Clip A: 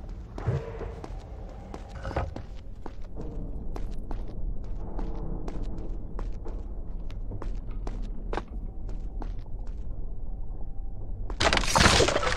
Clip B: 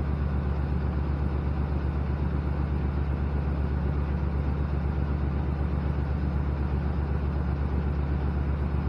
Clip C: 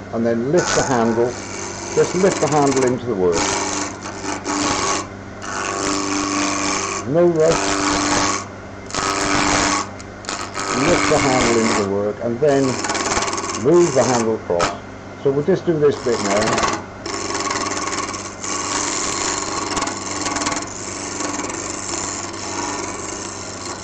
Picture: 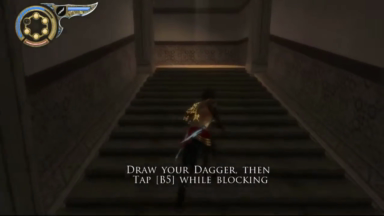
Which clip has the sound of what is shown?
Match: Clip A